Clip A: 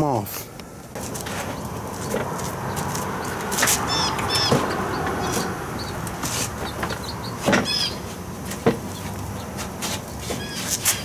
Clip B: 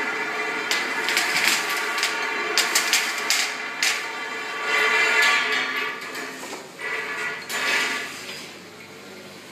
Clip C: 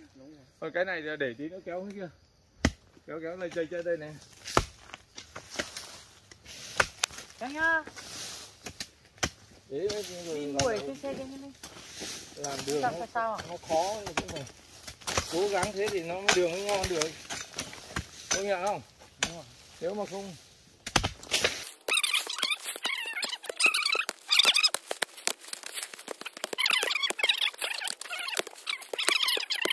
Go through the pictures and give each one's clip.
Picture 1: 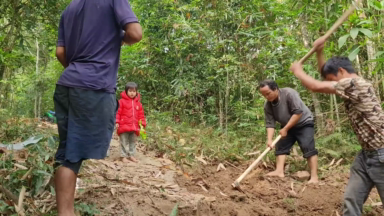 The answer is C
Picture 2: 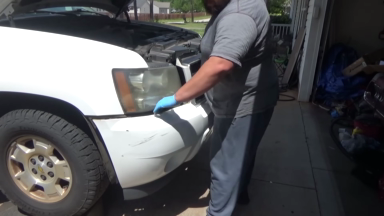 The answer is A